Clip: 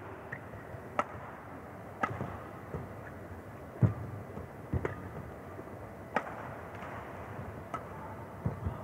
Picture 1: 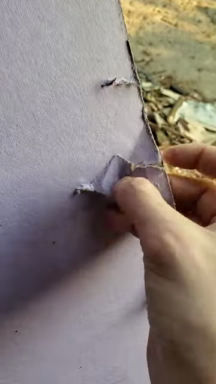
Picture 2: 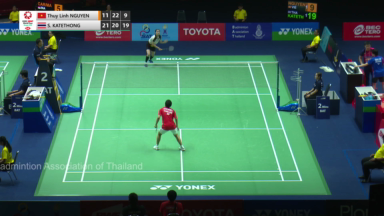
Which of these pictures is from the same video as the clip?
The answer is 2